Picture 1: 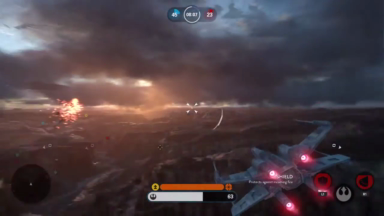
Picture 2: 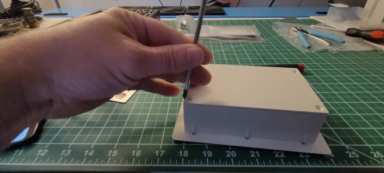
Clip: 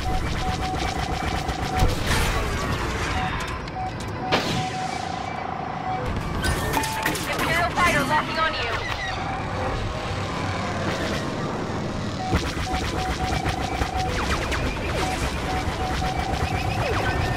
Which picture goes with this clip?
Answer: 1